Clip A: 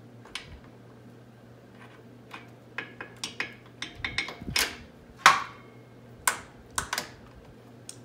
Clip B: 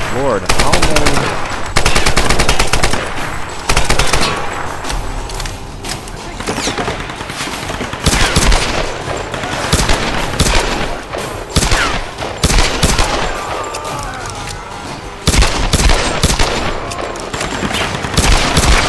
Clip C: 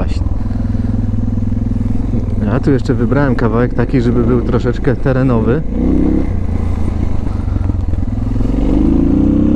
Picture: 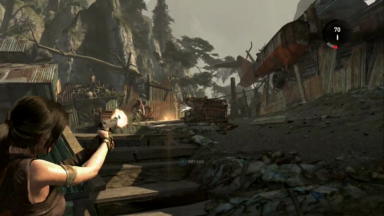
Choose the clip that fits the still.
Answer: B